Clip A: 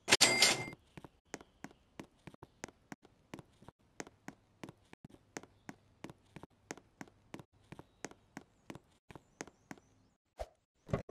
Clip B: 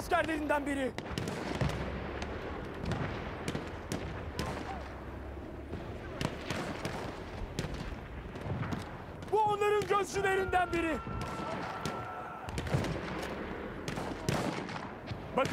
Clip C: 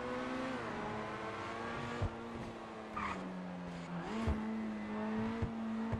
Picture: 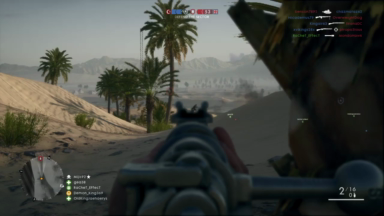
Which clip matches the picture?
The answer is B